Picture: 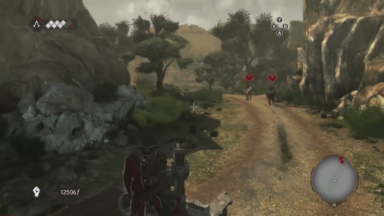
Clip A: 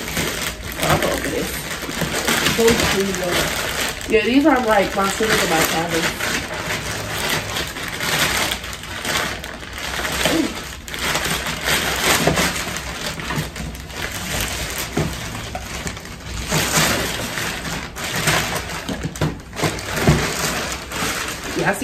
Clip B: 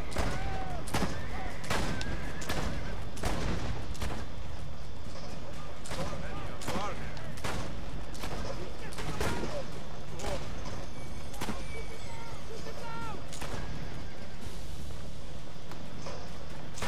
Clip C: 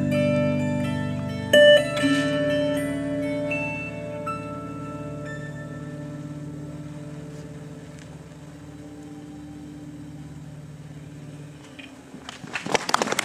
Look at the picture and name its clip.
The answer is B